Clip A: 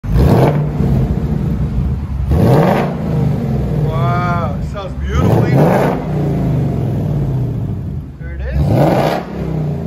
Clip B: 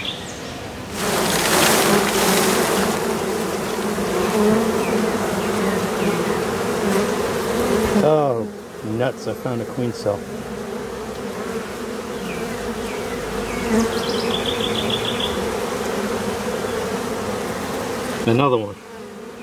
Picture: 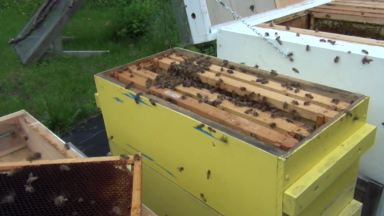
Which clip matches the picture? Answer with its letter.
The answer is B